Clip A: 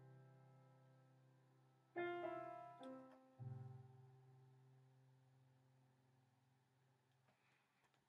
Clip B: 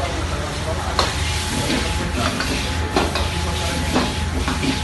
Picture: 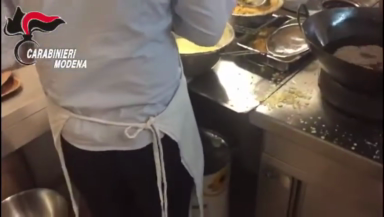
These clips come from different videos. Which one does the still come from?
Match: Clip B